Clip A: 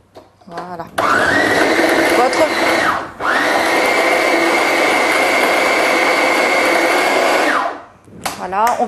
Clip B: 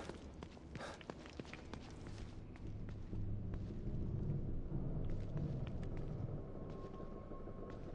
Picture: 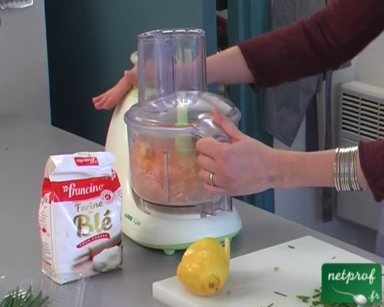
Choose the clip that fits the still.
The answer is A